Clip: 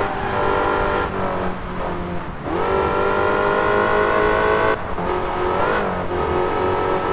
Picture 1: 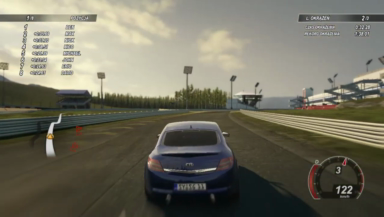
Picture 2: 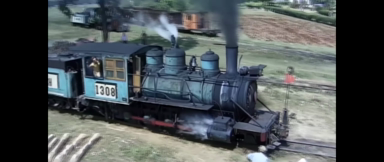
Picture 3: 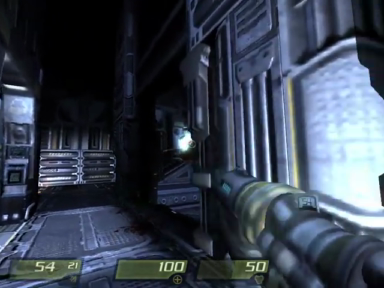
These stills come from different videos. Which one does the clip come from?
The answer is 1